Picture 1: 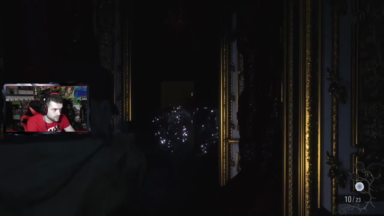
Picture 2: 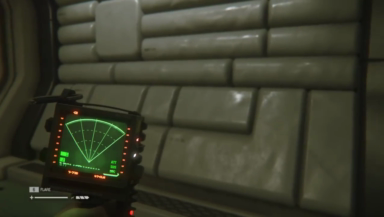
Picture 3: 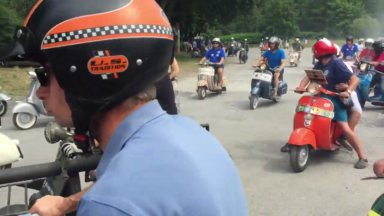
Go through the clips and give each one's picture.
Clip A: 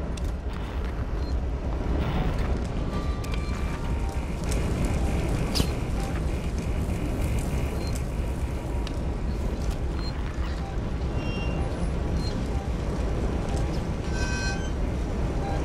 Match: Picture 2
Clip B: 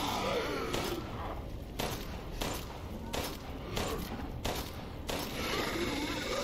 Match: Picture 1